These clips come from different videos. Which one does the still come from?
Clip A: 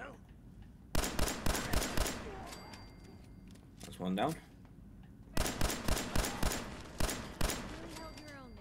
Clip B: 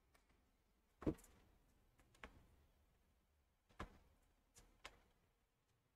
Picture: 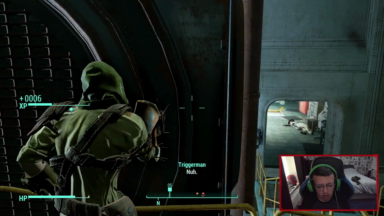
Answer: A